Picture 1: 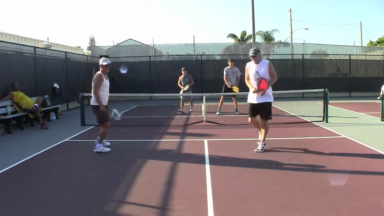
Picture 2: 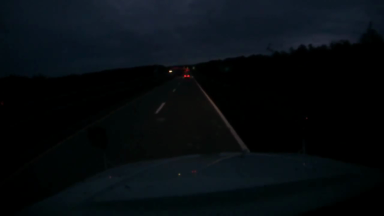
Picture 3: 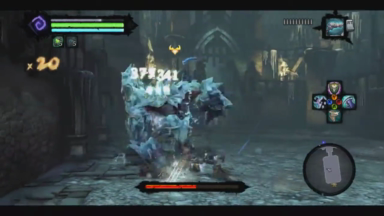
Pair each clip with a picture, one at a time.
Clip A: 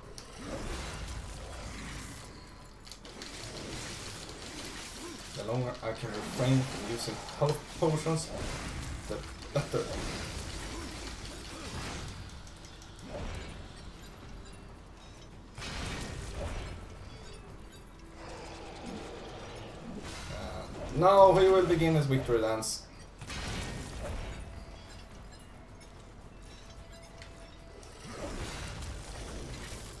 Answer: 3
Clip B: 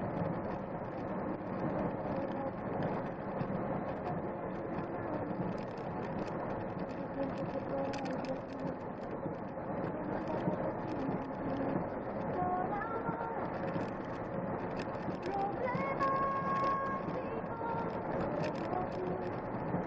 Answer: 2